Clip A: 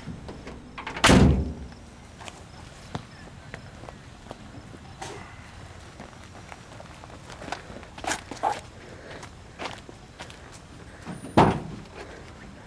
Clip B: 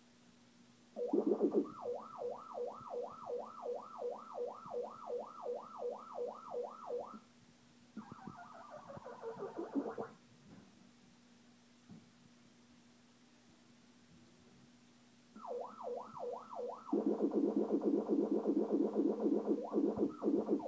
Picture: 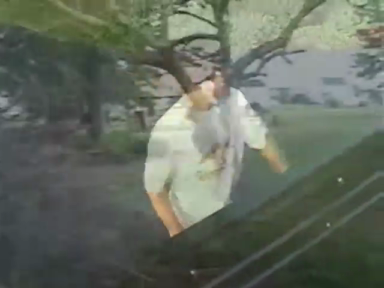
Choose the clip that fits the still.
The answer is A